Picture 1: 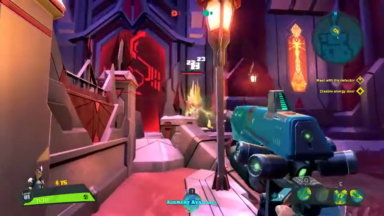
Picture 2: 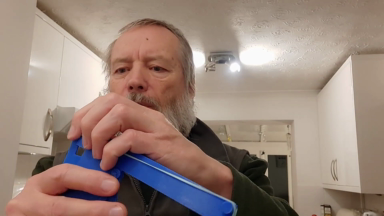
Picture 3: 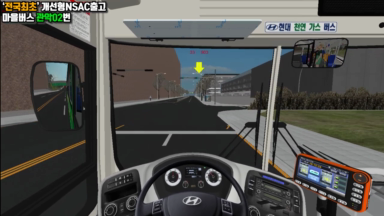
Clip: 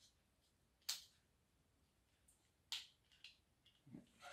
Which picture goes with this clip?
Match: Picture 2